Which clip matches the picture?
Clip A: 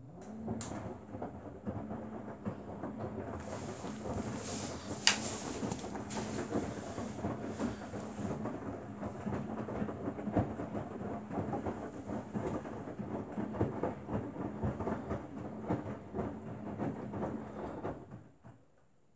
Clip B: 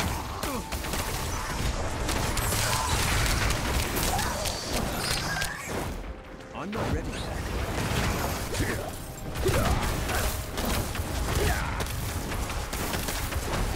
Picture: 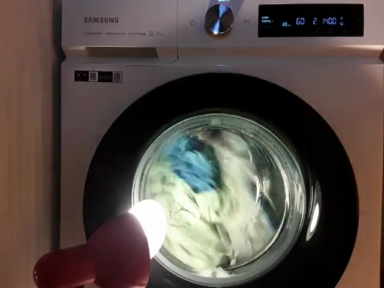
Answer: A